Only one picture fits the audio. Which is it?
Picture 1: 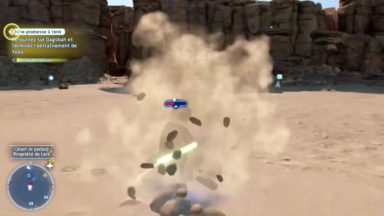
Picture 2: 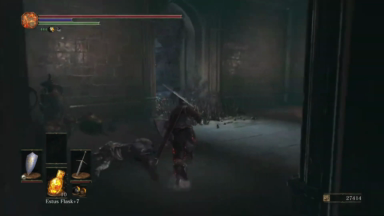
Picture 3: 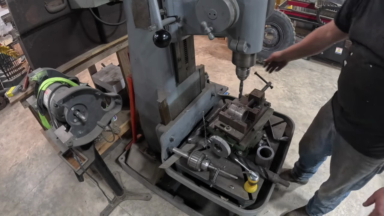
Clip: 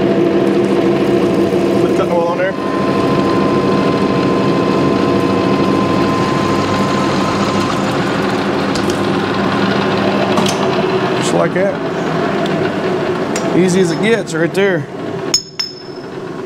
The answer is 3